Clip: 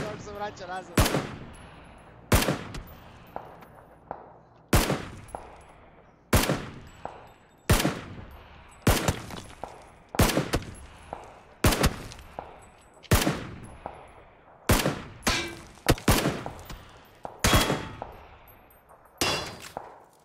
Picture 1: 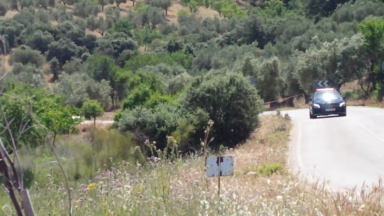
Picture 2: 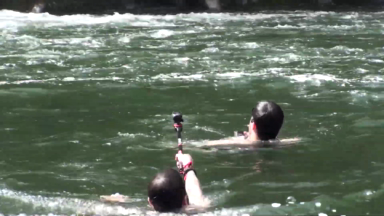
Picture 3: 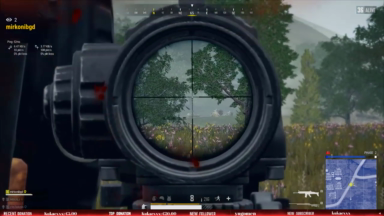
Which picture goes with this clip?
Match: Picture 3